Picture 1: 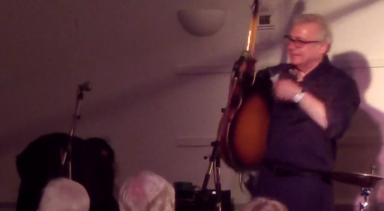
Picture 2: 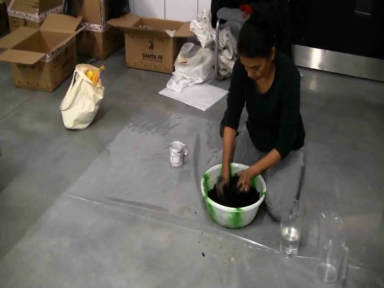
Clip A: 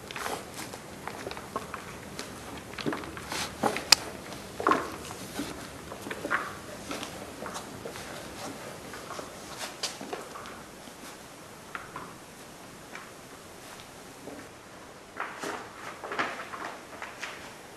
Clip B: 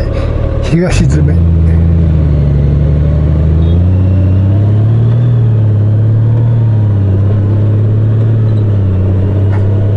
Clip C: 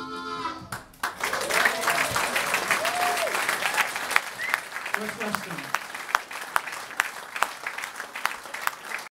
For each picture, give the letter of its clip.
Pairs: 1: C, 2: A